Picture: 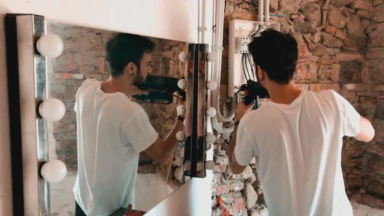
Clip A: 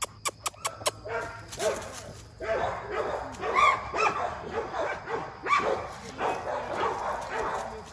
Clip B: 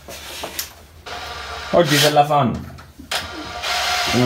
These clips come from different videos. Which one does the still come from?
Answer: B